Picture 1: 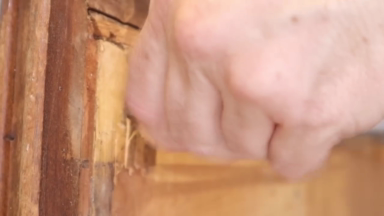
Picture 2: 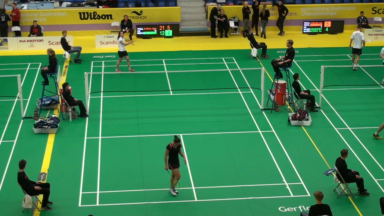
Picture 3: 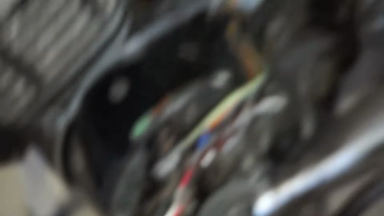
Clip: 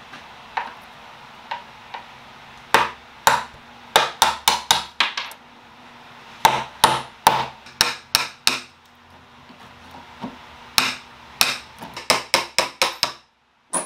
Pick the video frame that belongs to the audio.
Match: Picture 1